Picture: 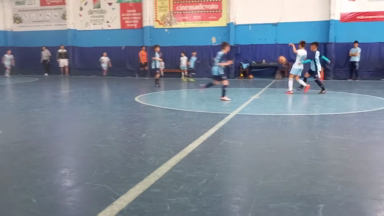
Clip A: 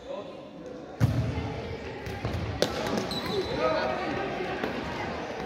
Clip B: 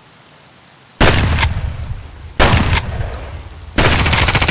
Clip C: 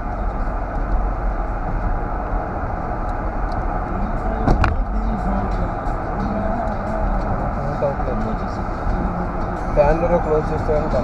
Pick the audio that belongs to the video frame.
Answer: A